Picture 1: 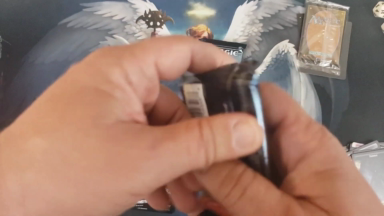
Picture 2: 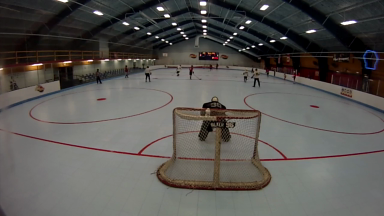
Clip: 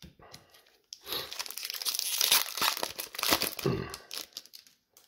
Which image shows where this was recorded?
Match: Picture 1